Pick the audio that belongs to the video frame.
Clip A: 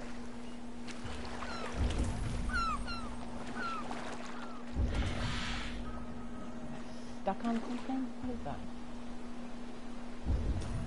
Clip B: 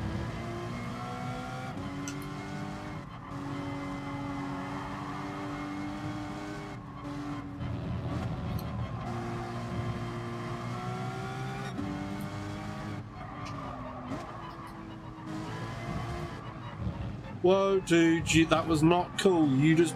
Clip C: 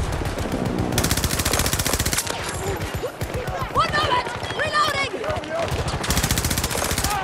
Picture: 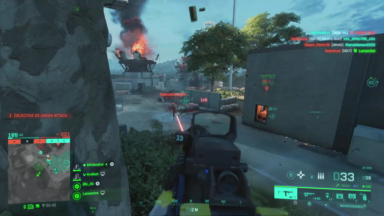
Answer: C